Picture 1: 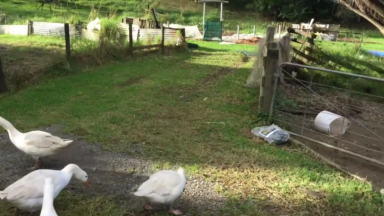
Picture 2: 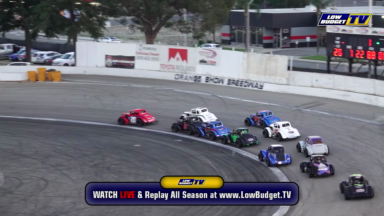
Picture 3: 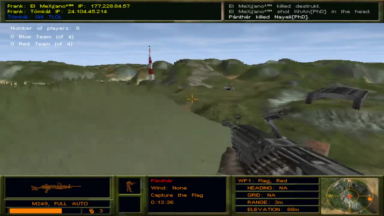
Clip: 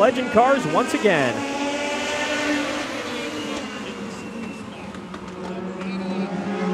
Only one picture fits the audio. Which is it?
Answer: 2